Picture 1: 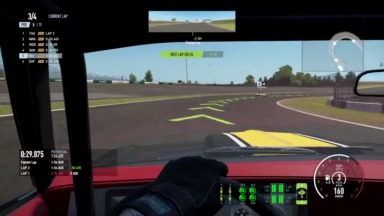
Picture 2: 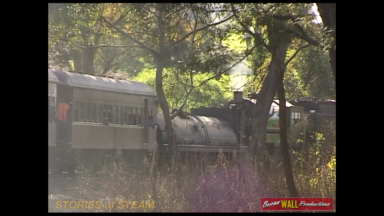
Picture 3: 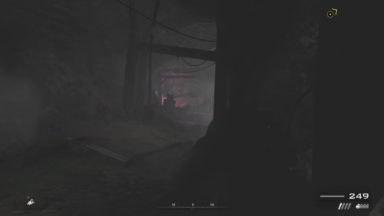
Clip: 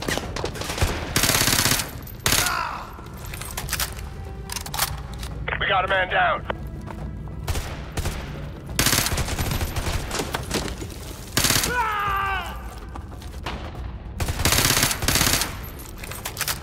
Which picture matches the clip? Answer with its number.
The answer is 3